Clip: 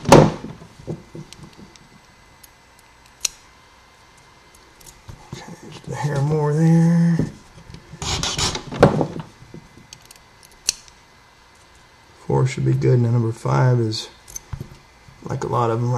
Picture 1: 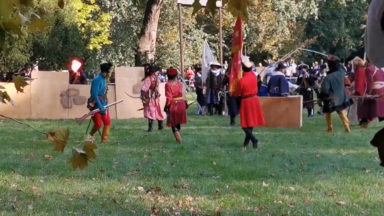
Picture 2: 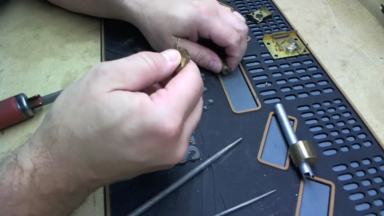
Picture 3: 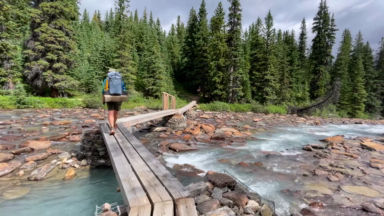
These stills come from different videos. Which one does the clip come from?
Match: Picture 2